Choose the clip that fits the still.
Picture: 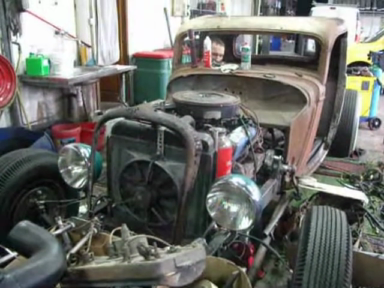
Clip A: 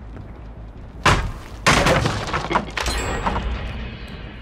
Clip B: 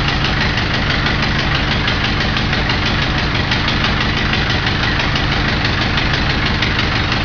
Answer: B